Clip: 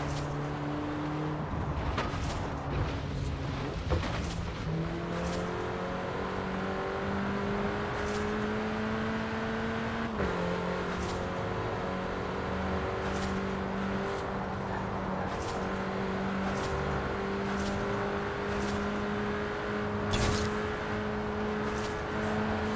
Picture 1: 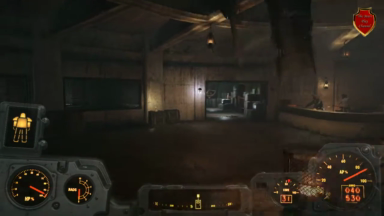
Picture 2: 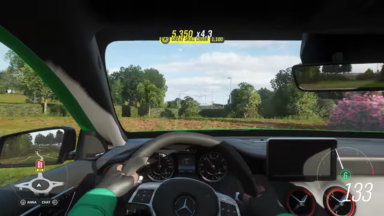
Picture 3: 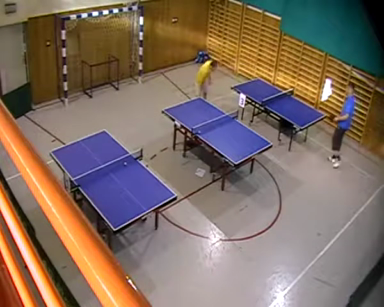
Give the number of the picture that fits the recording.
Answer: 2